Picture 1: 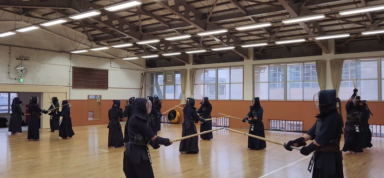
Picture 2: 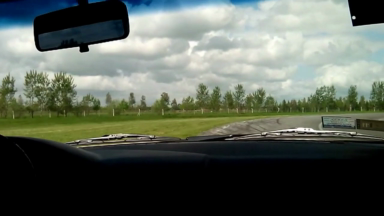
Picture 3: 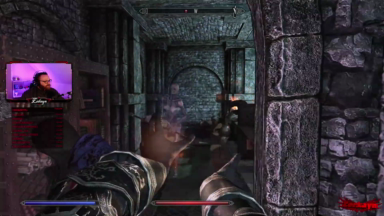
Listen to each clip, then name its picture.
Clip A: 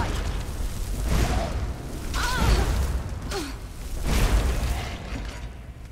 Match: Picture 3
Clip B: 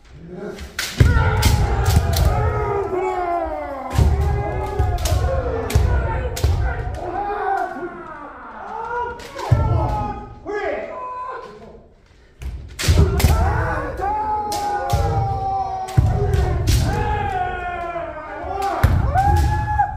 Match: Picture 1